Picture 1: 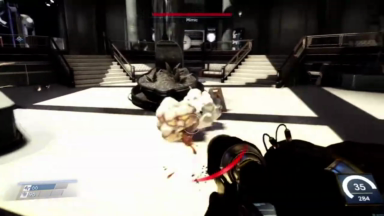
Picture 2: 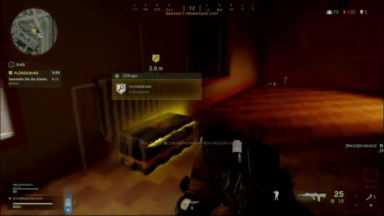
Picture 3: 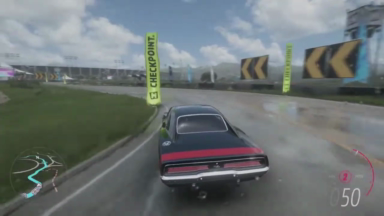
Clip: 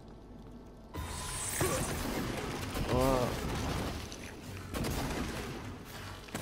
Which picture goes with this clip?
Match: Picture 1